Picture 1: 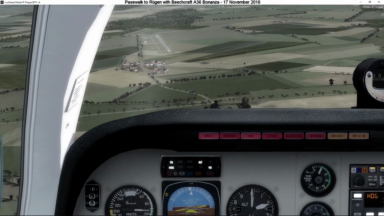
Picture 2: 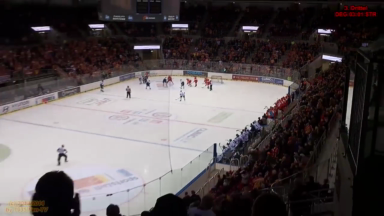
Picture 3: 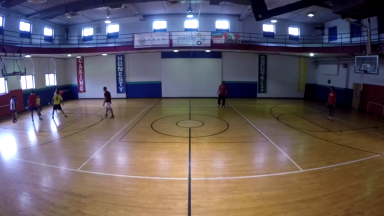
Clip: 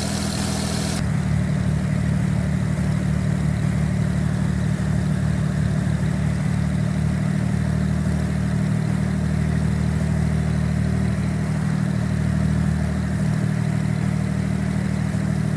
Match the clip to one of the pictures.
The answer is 1